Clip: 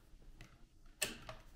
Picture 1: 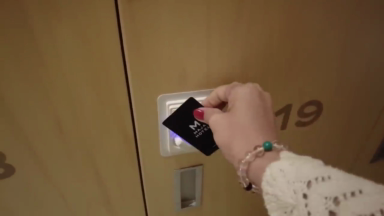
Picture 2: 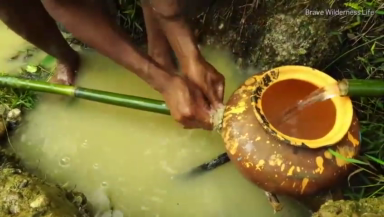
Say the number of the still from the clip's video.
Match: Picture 1